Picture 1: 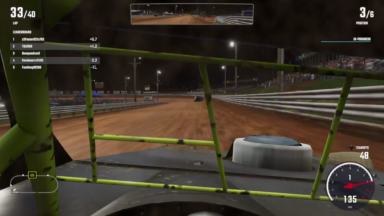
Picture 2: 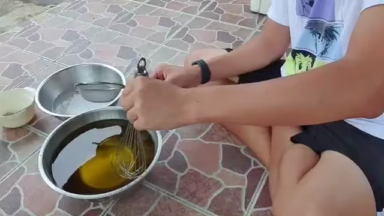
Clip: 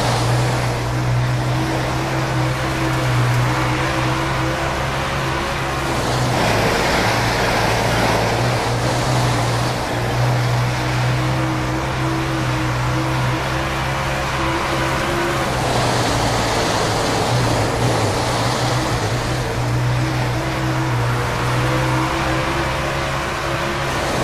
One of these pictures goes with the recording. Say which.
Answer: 1